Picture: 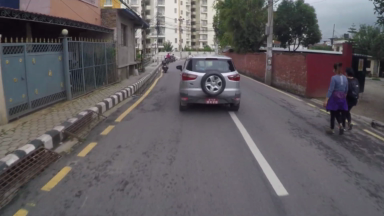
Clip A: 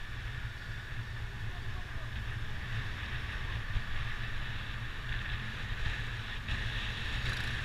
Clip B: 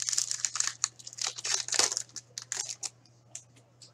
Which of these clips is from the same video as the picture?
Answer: A